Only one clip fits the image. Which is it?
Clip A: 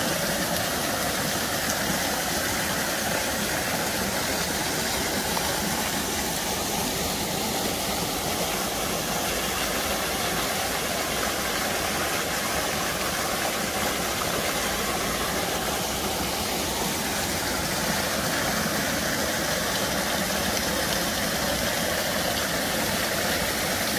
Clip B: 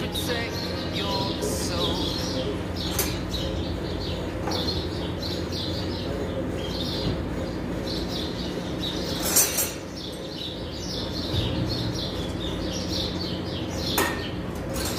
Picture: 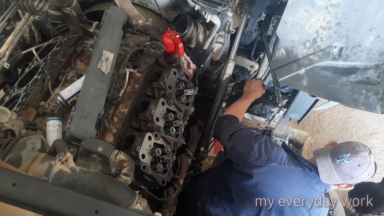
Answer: B